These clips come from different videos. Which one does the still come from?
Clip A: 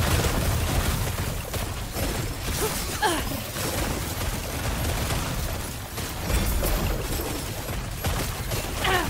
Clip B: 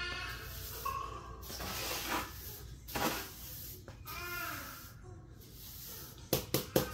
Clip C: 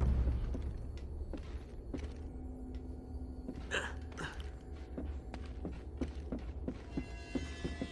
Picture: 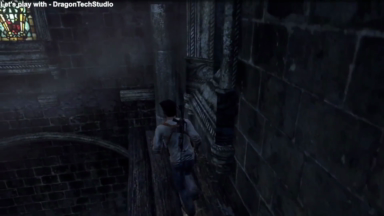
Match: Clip C